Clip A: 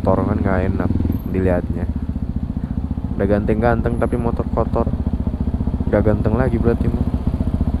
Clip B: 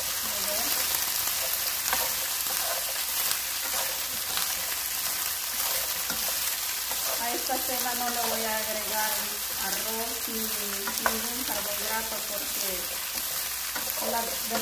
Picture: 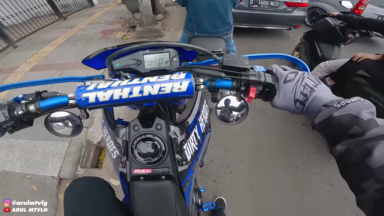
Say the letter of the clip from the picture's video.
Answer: A